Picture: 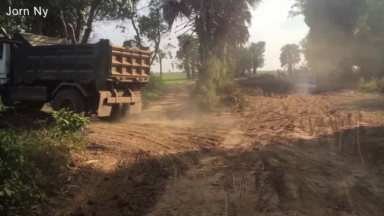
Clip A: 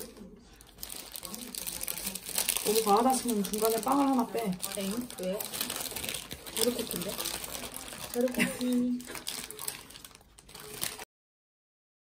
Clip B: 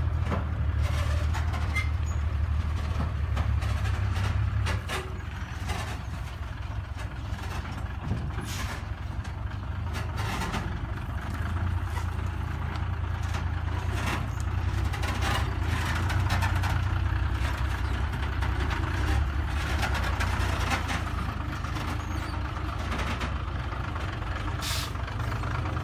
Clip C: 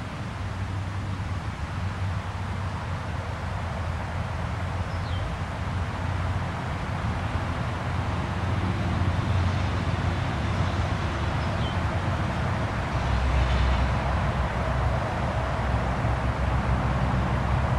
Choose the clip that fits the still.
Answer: B